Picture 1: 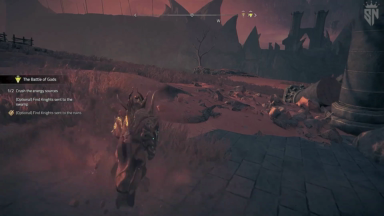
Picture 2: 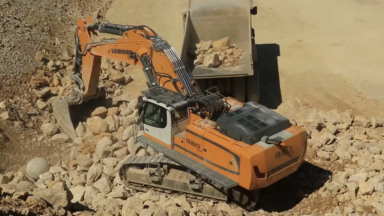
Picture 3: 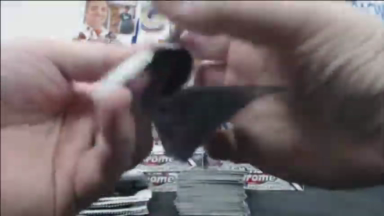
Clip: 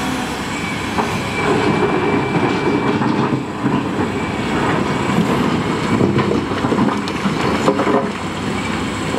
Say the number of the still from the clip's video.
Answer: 2